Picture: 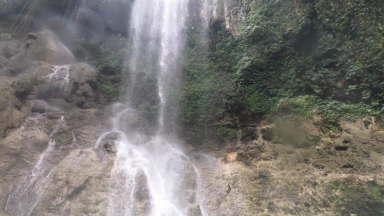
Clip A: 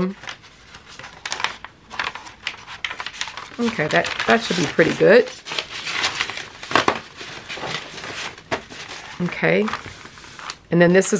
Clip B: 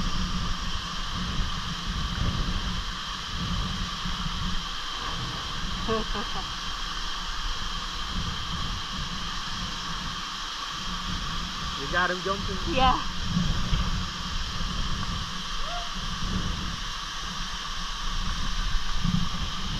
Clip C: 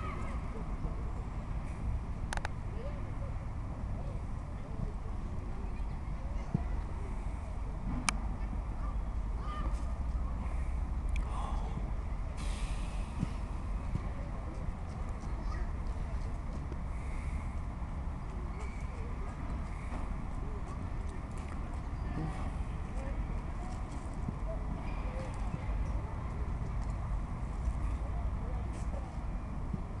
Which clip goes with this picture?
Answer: B